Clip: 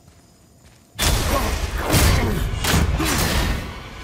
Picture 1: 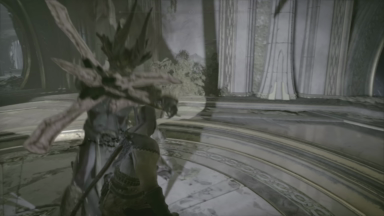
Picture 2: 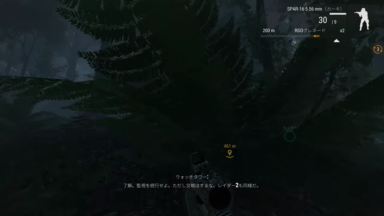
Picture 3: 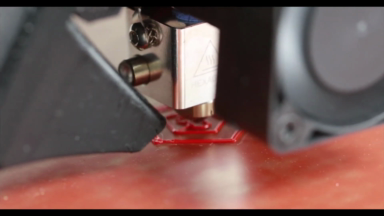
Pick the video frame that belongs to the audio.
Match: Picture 1